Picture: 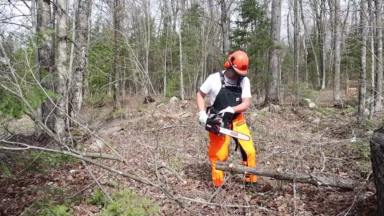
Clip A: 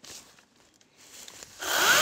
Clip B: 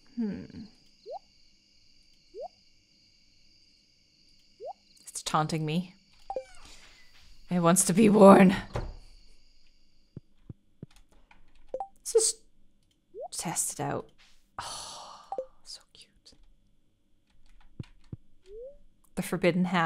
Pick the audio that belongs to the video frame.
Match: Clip A